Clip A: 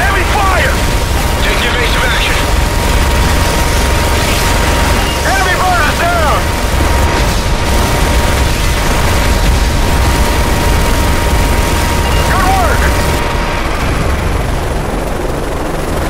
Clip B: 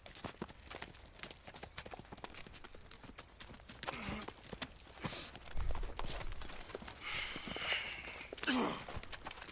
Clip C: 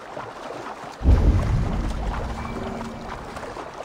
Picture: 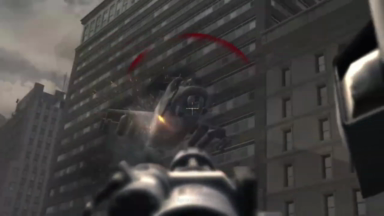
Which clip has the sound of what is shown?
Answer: A